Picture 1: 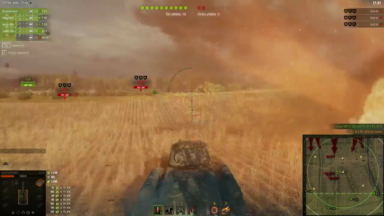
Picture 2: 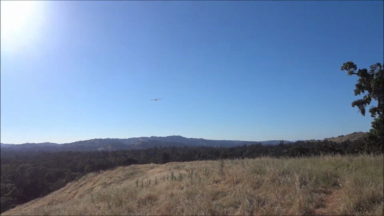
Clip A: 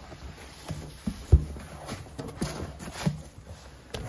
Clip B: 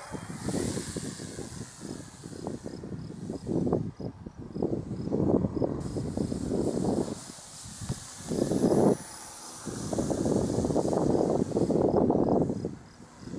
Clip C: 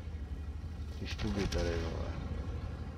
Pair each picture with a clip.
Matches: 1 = C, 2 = B